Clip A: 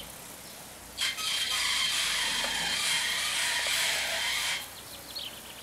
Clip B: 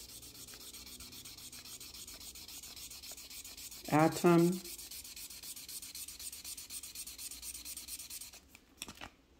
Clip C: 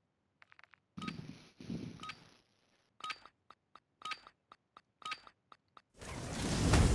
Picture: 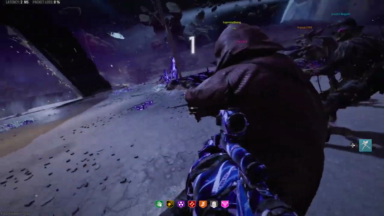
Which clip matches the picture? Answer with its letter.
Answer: C